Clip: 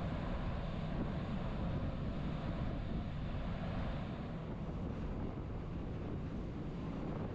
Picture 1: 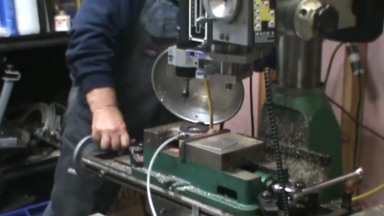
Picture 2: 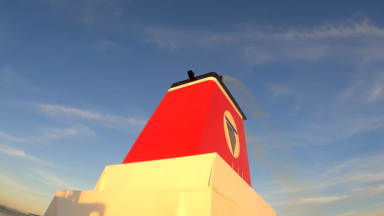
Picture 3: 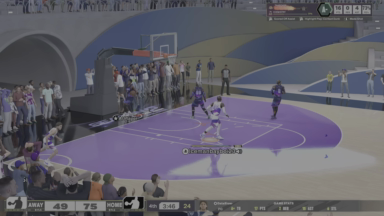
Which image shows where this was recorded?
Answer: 2